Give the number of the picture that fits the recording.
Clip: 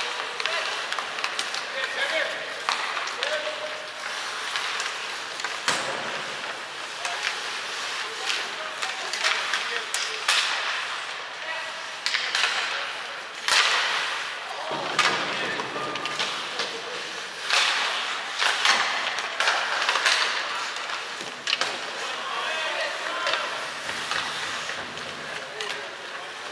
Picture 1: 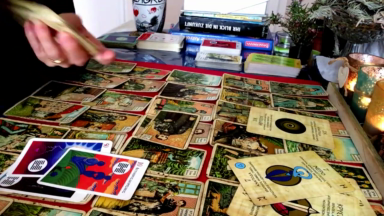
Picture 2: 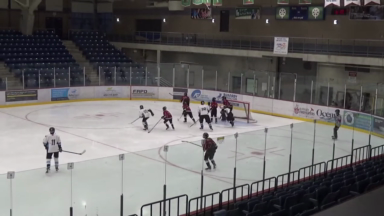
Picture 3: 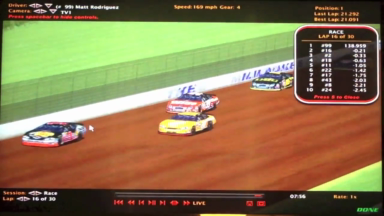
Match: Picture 2